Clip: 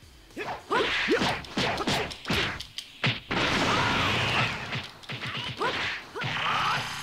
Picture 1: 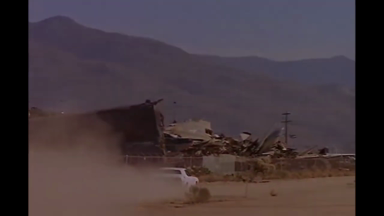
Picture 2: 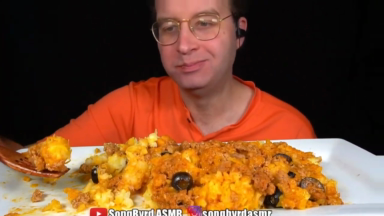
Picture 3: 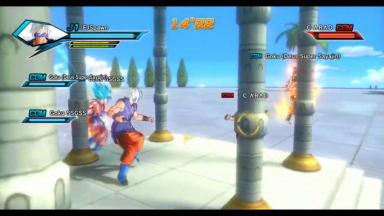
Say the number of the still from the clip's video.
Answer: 3